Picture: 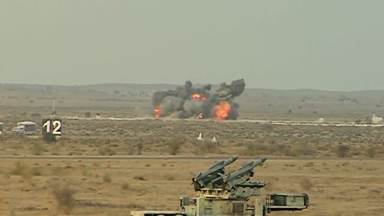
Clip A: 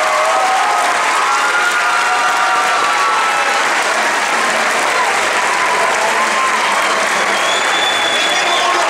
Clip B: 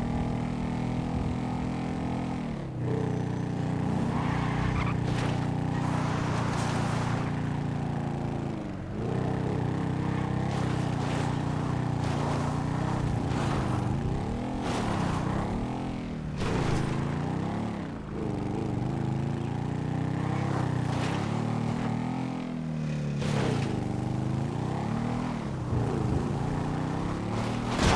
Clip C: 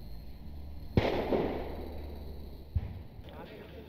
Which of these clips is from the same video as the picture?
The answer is C